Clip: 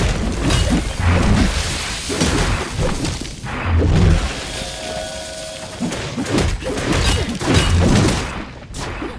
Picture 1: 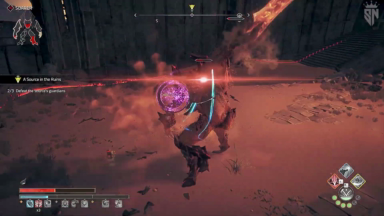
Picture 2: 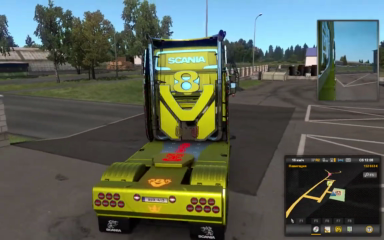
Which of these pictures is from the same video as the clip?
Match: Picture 1